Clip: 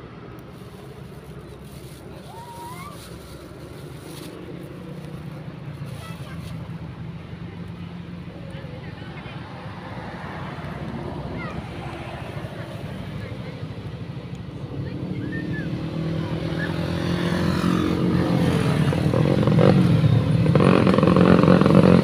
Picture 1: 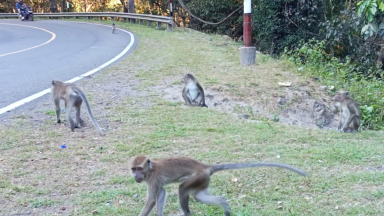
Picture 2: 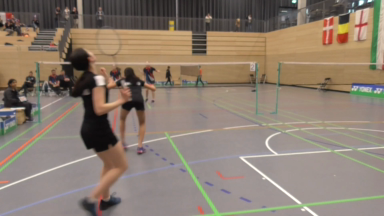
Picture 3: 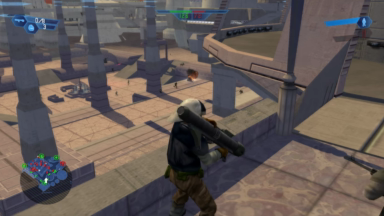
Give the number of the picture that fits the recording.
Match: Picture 1